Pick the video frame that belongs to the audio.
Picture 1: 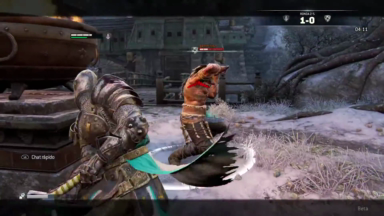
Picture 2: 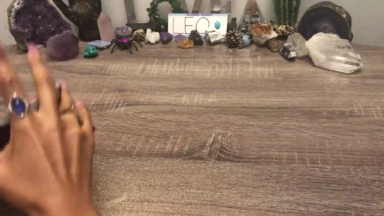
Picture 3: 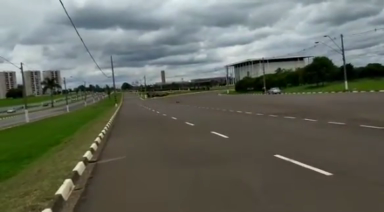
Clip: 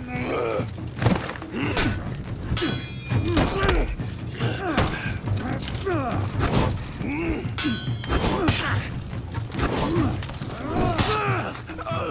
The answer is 1